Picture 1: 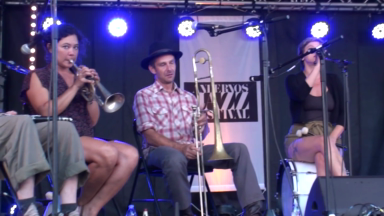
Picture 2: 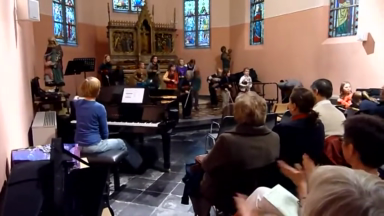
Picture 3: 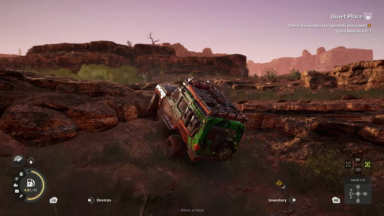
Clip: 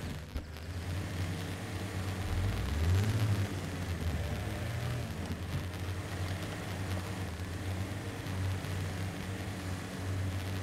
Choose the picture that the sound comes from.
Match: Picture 3